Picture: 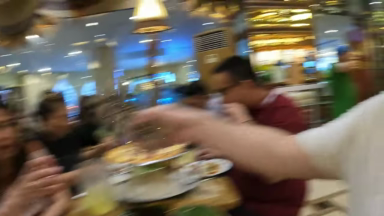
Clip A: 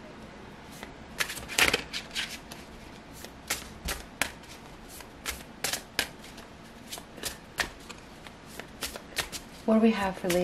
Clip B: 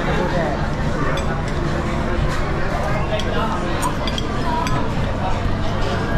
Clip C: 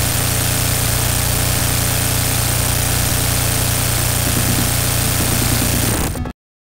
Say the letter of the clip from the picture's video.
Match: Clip B